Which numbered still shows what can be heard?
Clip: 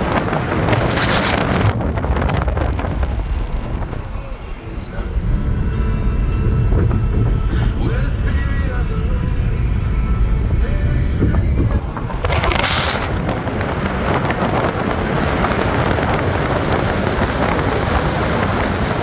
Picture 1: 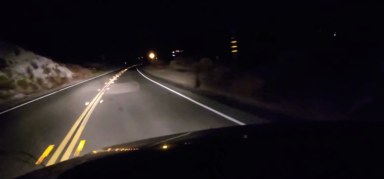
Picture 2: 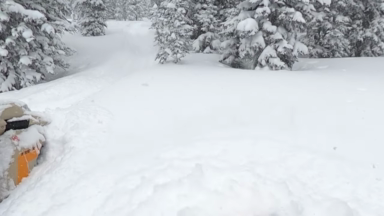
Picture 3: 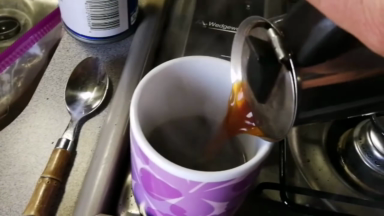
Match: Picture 1